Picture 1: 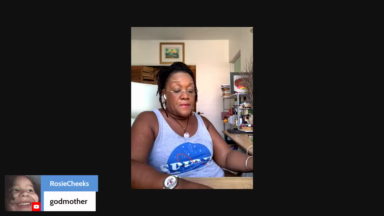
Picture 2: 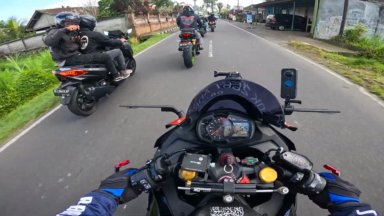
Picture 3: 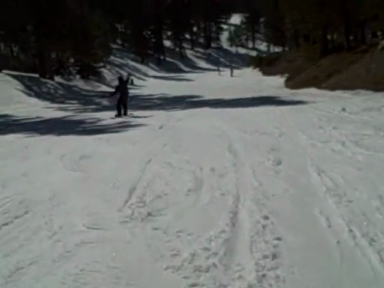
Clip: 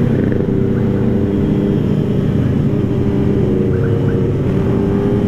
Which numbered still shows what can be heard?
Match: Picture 2